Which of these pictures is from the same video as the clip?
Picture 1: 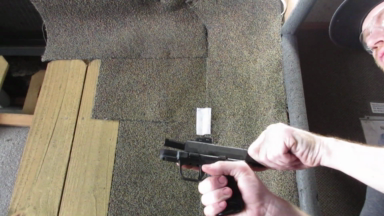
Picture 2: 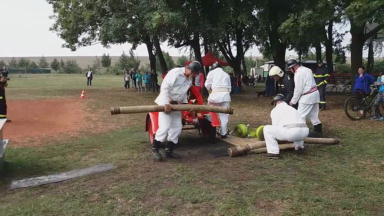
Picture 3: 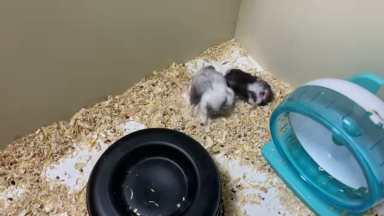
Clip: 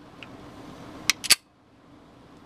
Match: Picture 1